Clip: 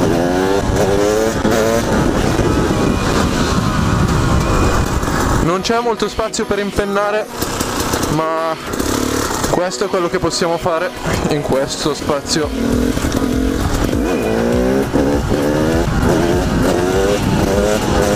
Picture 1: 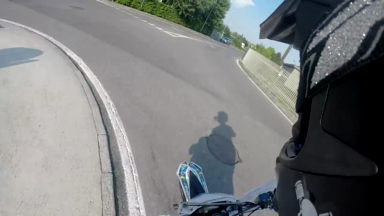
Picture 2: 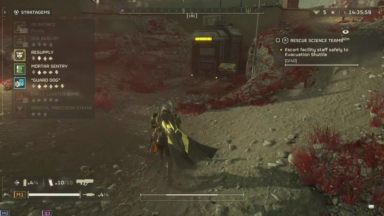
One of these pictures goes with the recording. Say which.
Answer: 1